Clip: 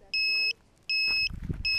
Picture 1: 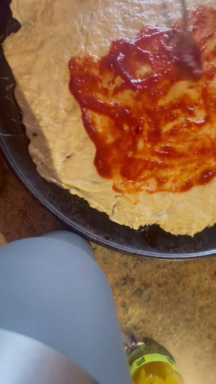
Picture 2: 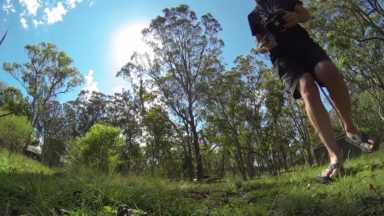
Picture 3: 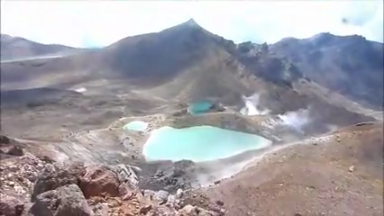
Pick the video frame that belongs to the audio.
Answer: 2